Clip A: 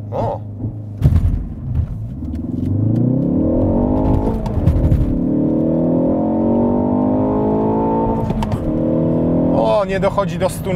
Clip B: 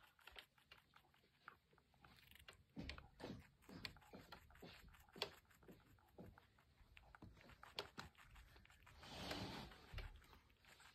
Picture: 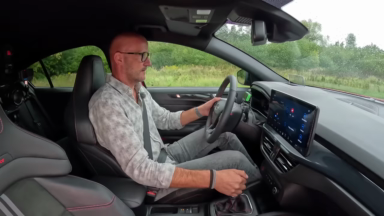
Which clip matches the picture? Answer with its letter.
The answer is A